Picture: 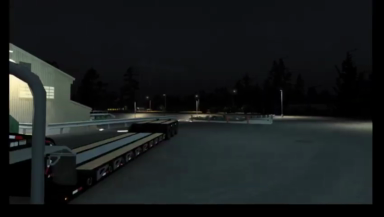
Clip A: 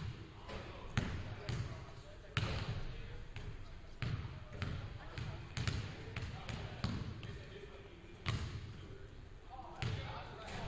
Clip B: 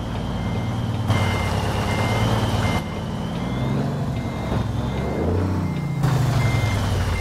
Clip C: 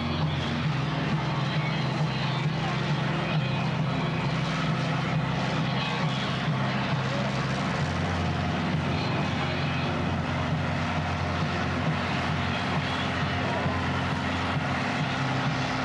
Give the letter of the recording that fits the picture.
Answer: B